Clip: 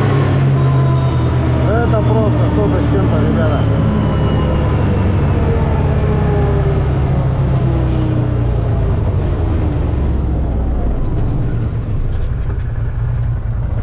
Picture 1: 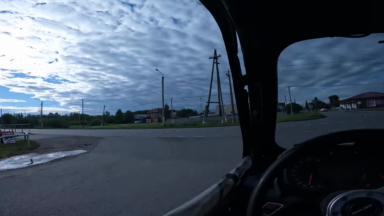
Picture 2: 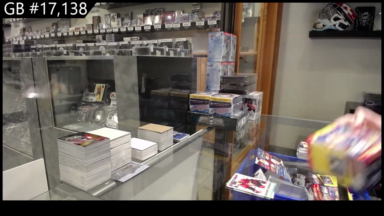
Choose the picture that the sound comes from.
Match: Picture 1